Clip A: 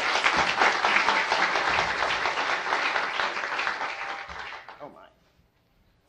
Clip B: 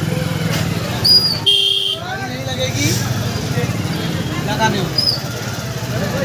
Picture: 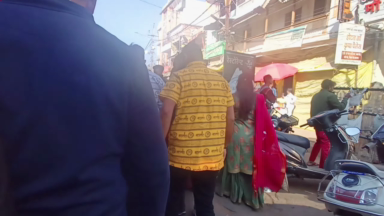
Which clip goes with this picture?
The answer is B